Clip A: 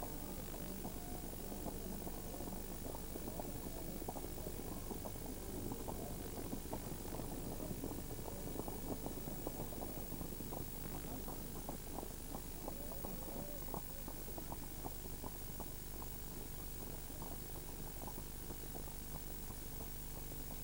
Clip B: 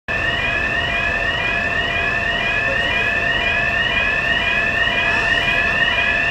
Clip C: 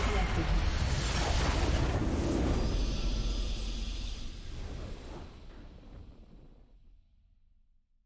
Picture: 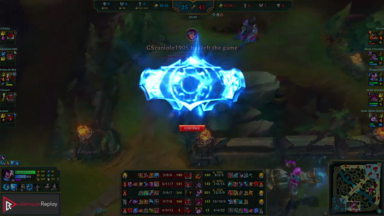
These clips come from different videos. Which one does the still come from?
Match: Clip C